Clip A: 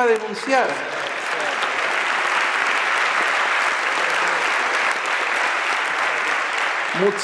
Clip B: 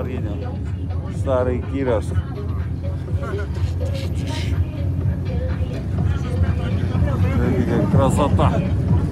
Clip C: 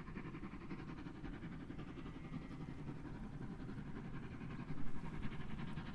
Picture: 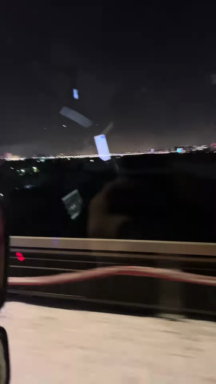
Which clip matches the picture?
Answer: B